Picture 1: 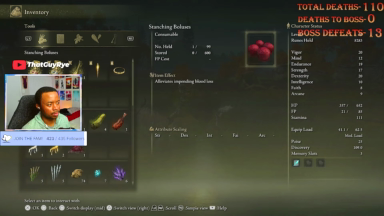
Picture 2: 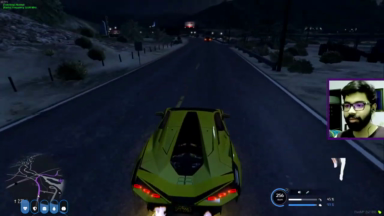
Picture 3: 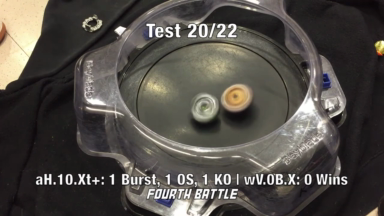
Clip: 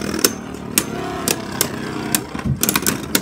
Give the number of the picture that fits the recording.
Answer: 3